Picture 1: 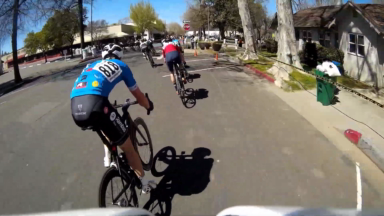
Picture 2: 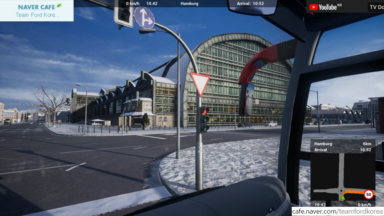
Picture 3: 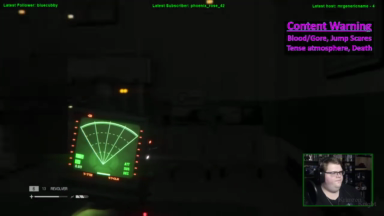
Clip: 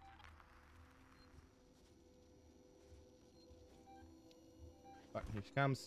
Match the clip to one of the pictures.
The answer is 3